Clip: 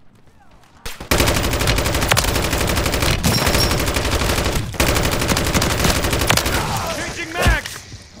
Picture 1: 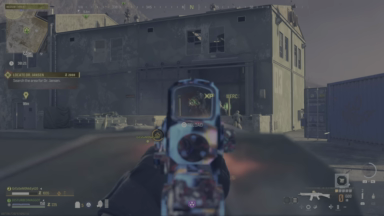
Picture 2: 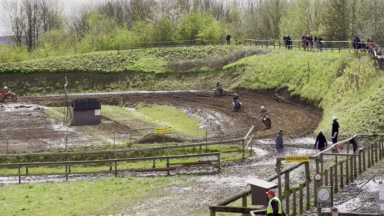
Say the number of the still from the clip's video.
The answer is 1